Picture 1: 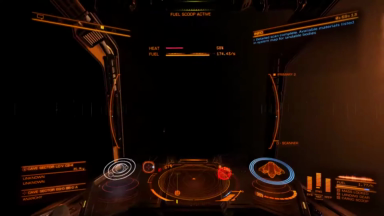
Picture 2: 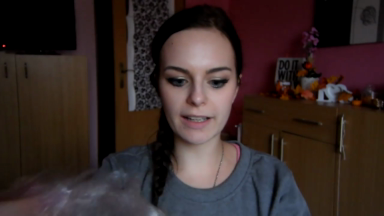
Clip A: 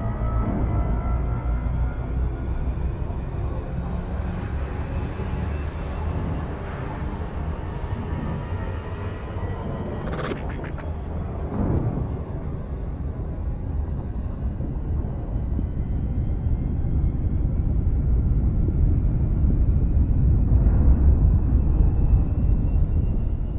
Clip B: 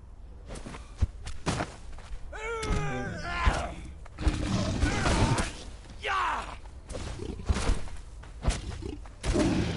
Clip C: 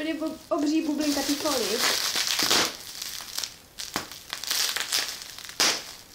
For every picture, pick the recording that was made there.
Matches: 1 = A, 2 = C